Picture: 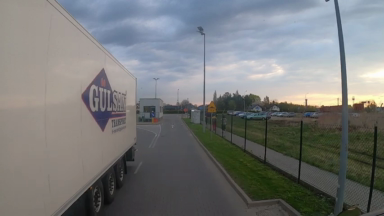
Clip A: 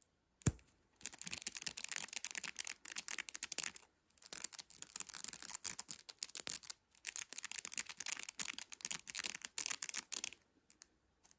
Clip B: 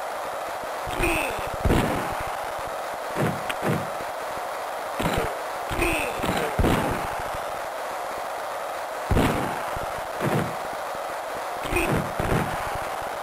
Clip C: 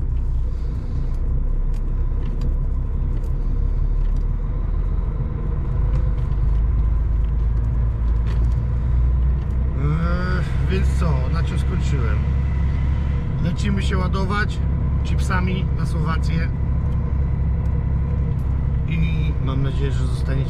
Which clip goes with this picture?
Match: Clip C